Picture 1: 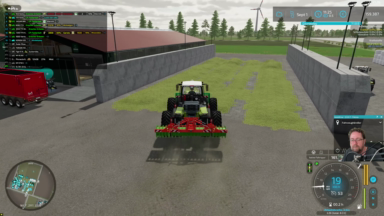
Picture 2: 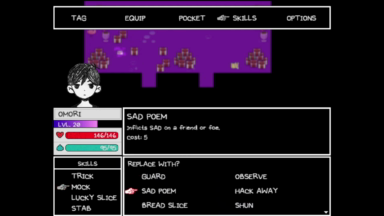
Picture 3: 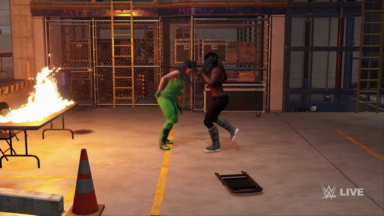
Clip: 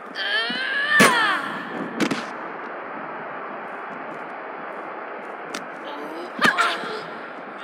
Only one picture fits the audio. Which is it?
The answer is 3